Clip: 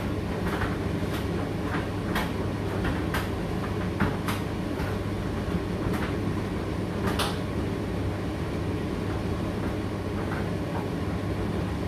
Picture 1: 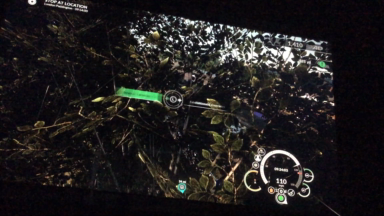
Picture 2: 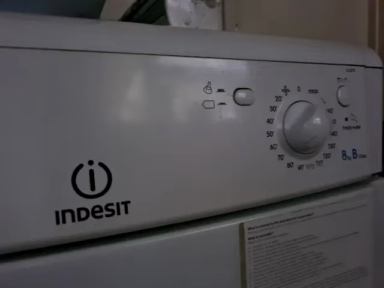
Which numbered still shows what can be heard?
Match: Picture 2